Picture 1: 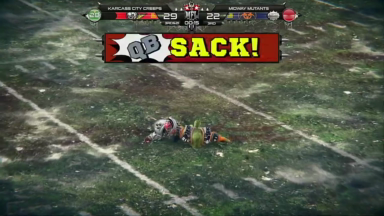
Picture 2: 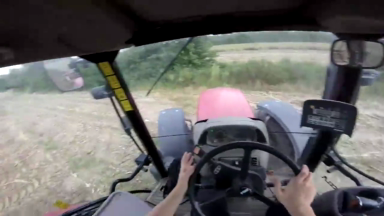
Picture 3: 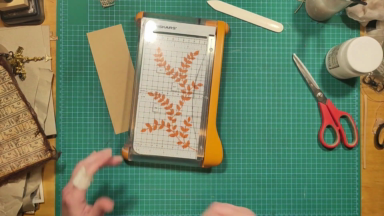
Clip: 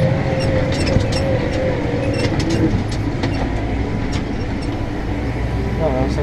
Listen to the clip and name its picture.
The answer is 2